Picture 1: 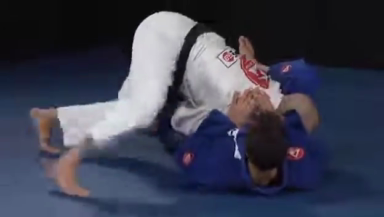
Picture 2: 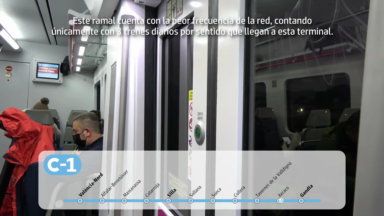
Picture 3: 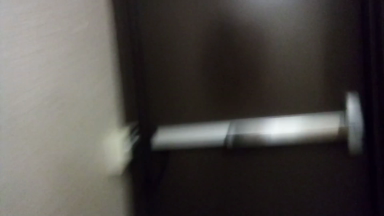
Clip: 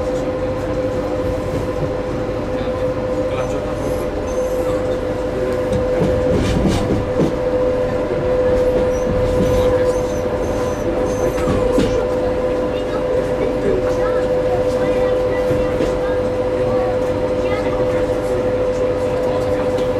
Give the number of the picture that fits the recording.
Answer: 2